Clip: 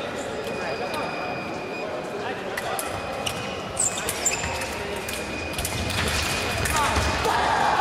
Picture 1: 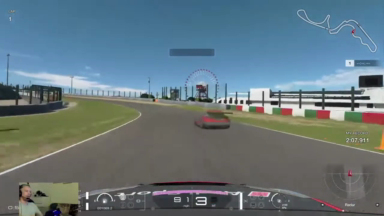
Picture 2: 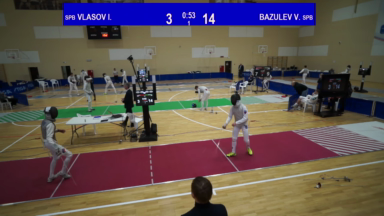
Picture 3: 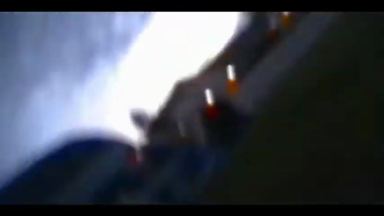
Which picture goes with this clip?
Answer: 2